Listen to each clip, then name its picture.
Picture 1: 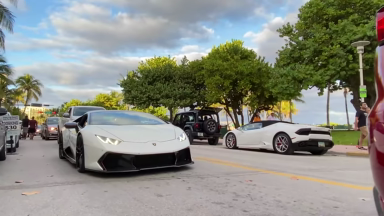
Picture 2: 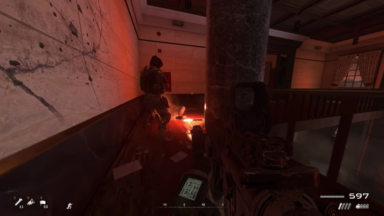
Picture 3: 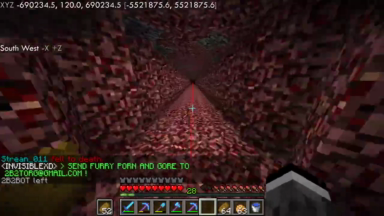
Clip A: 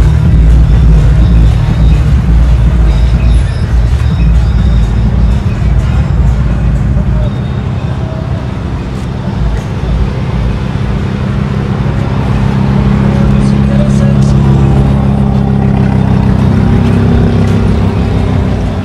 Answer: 1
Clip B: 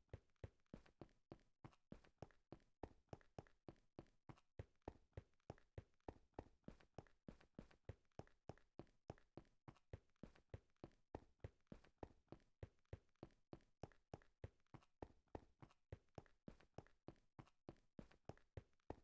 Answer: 3